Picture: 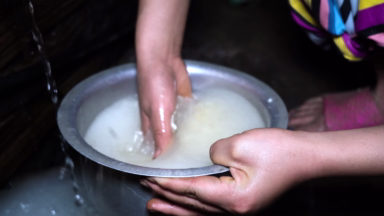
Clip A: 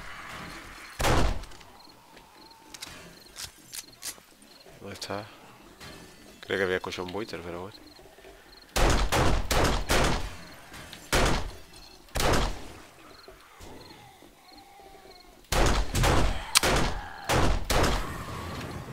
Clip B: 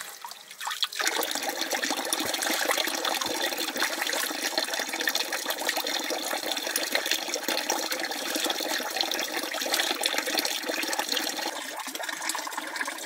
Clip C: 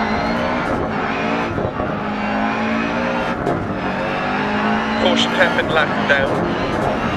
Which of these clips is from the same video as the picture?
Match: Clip B